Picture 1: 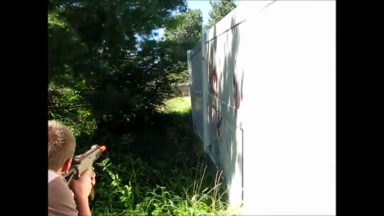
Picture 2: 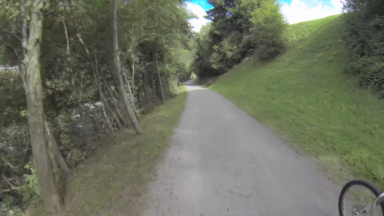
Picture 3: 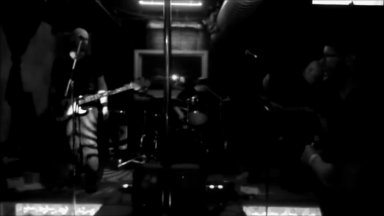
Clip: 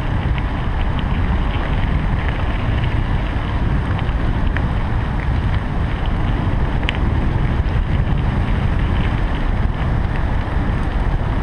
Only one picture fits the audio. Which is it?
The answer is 2